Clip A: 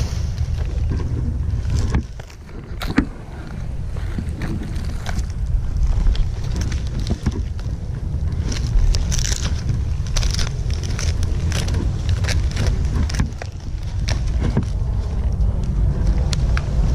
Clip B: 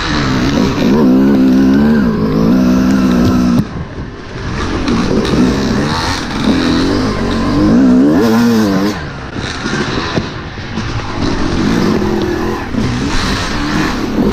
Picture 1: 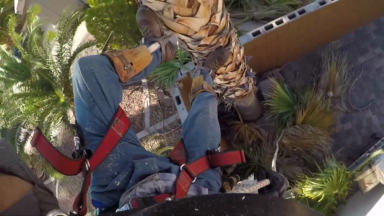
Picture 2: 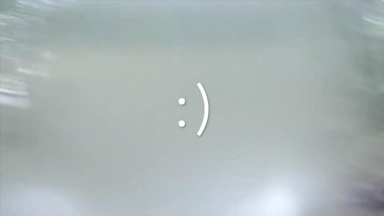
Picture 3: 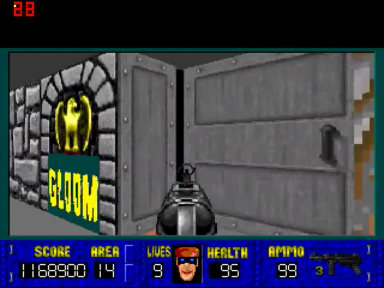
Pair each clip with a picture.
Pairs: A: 1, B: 2